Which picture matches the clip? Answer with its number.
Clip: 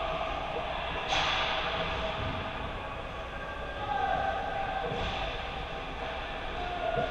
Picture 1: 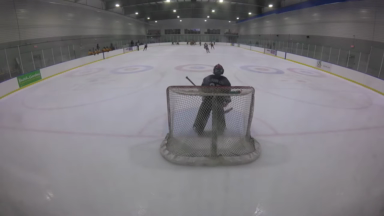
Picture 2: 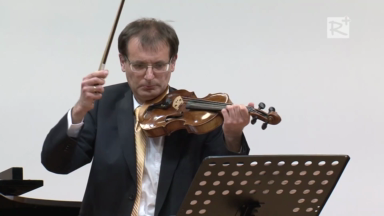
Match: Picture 1